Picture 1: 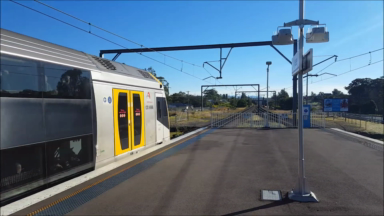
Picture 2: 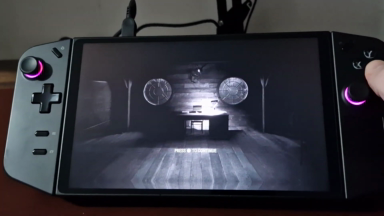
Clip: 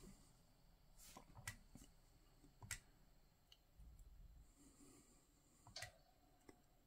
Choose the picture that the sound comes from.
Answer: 2